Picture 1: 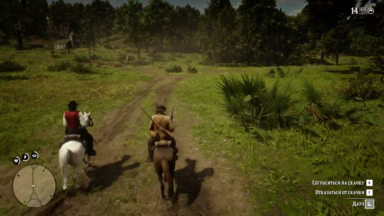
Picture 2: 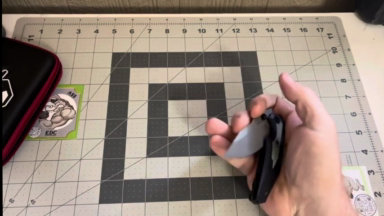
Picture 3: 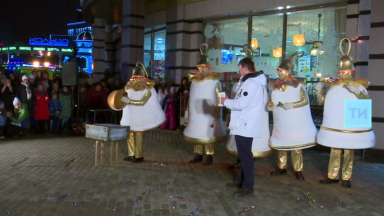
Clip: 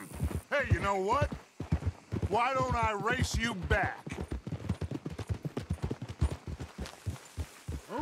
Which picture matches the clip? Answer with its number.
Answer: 1